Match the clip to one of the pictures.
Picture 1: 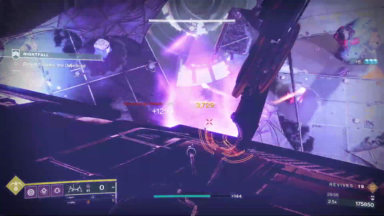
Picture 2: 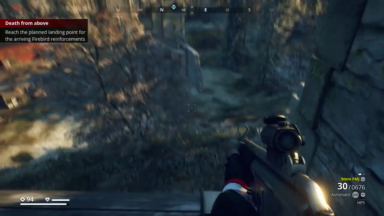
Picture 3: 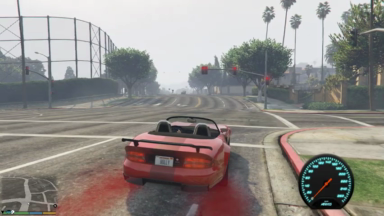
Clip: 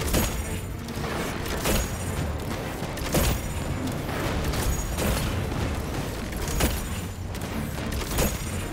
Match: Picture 1